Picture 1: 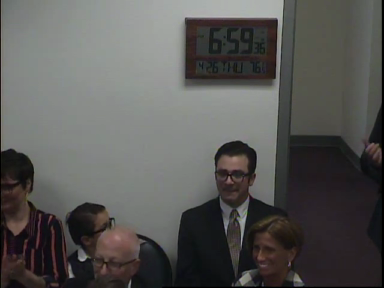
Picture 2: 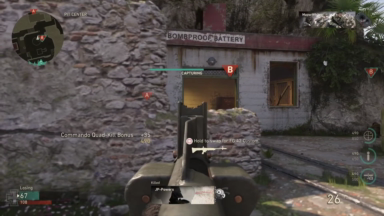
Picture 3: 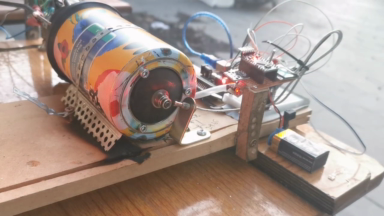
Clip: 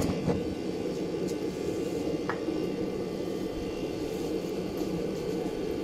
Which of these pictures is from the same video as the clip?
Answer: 3